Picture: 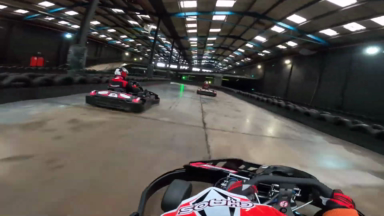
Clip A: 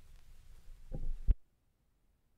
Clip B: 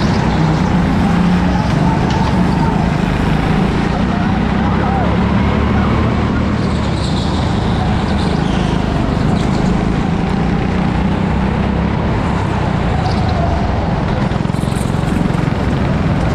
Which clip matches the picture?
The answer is B